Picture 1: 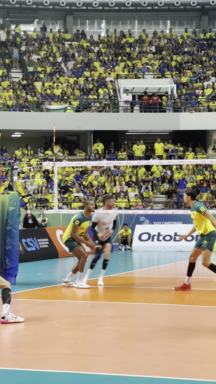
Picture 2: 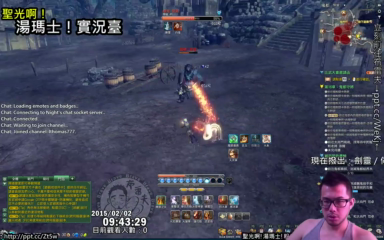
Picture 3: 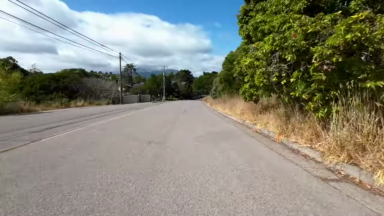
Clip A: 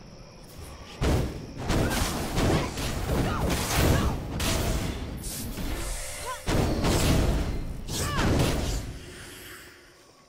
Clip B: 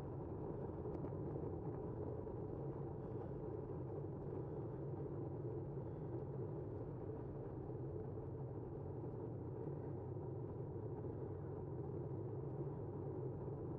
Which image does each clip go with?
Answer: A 2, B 3